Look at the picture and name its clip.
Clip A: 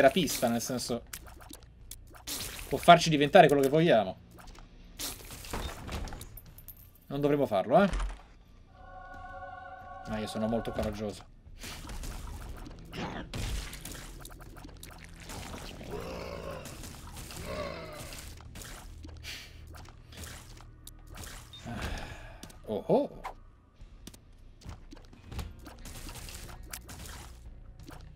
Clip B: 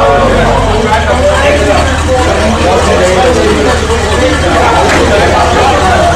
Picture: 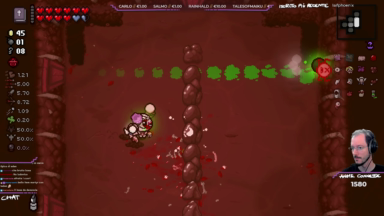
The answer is A